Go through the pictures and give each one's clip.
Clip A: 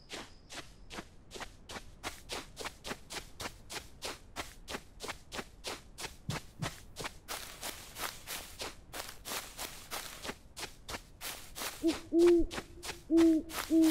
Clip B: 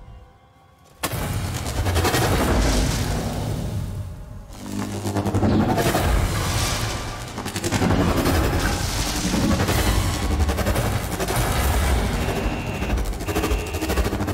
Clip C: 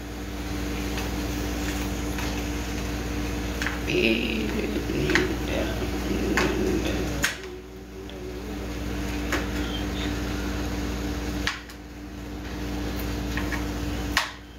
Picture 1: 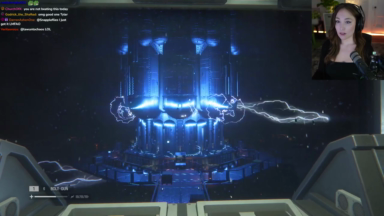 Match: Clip B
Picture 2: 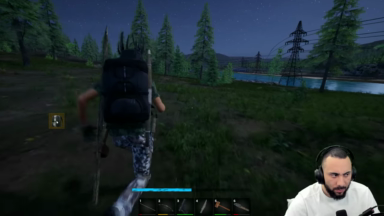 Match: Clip A